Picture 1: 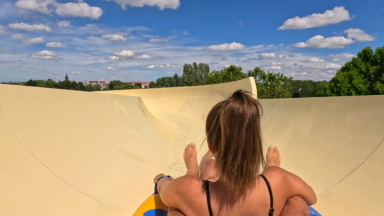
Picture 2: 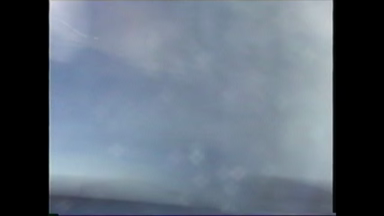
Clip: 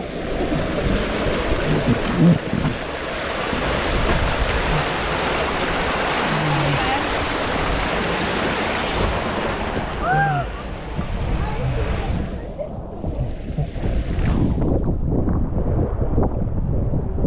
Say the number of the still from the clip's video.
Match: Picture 1